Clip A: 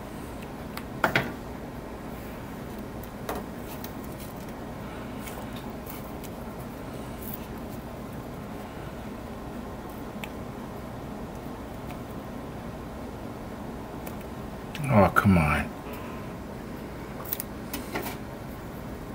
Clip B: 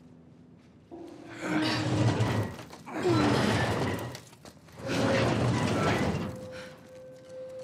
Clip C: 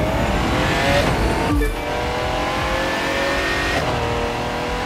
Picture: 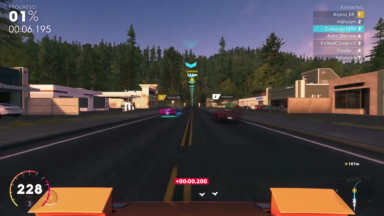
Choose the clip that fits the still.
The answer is C